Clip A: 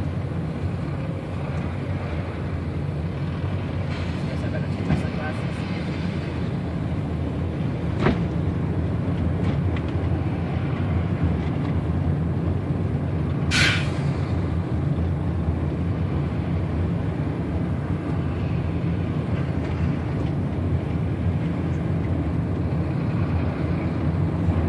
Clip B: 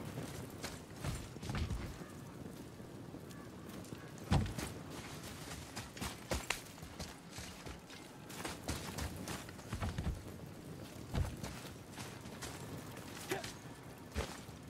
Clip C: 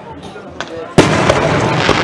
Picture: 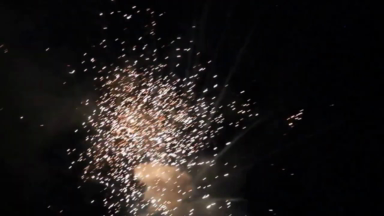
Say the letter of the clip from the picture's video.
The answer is C